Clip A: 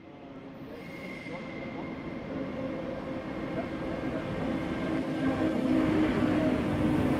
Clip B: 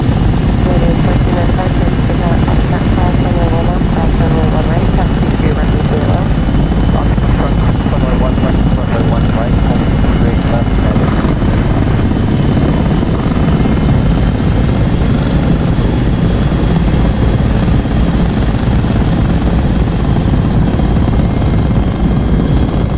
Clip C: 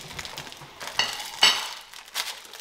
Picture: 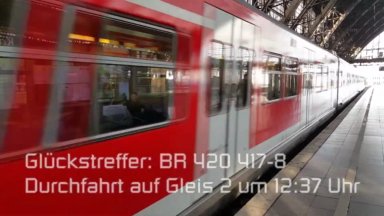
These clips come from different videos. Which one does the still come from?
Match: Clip A